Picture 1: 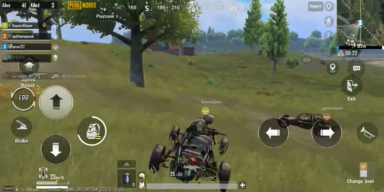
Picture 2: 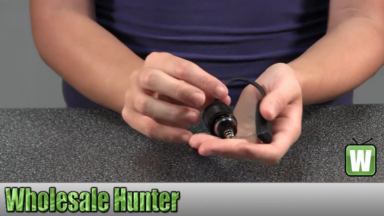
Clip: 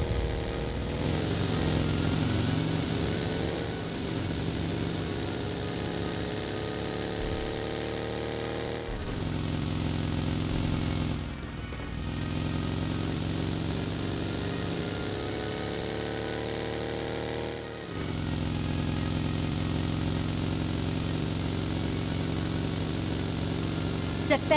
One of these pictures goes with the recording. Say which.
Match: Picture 1